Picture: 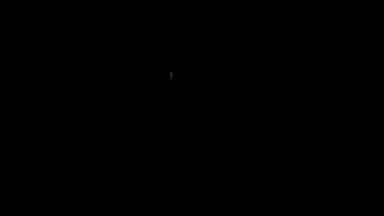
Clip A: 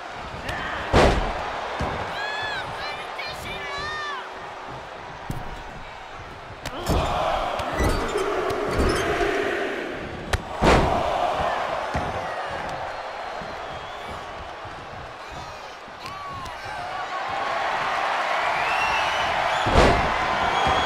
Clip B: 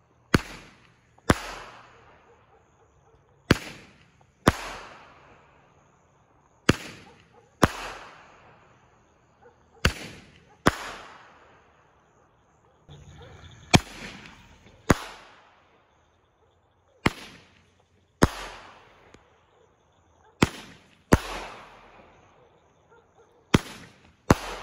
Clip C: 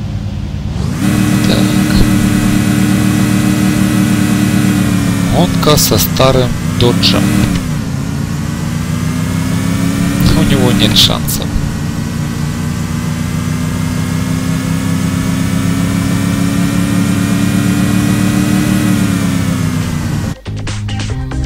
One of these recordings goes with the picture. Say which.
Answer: B